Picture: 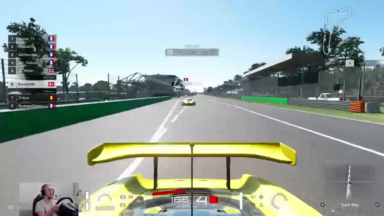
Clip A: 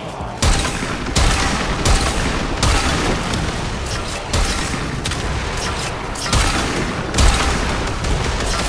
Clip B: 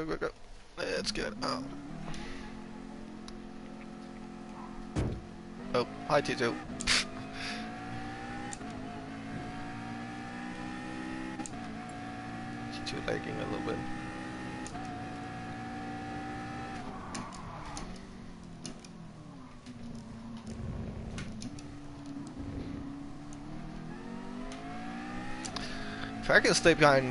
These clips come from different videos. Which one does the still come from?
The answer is B